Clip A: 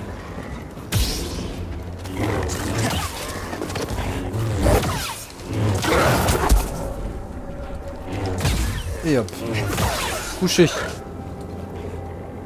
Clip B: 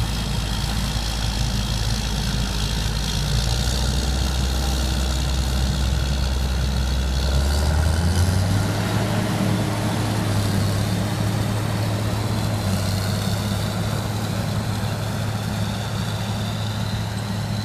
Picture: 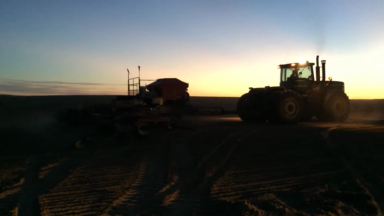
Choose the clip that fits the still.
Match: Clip B